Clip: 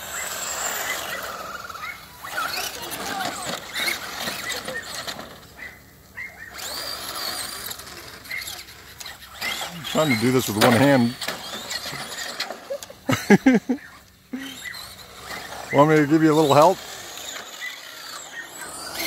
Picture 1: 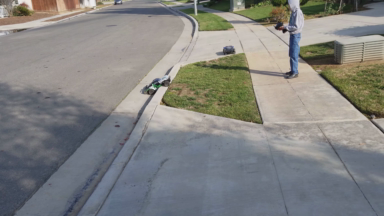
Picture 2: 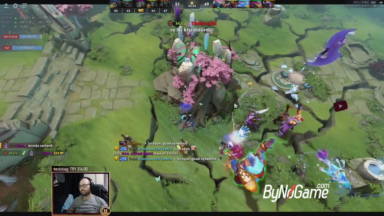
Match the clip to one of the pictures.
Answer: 1